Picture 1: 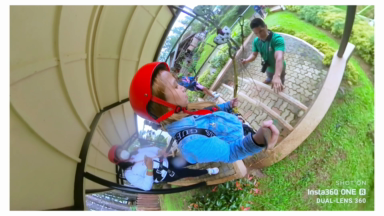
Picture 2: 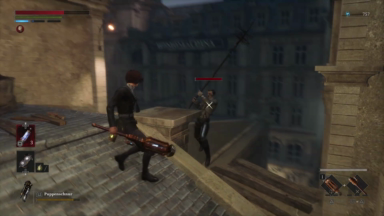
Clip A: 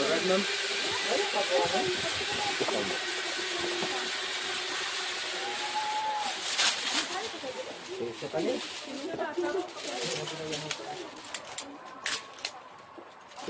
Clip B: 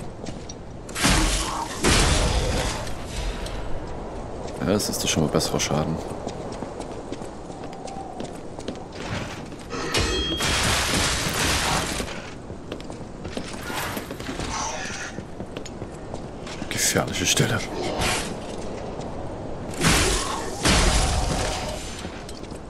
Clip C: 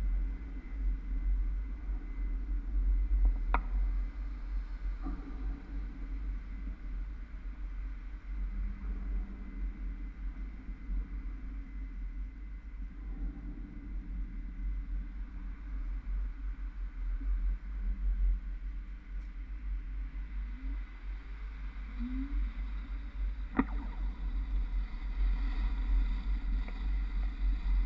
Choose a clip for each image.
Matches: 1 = A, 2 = B